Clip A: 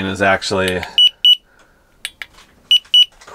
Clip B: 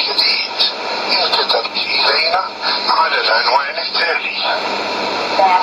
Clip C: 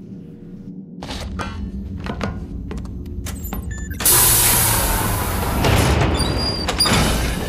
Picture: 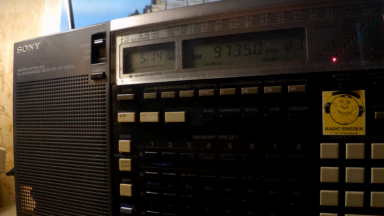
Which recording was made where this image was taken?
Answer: B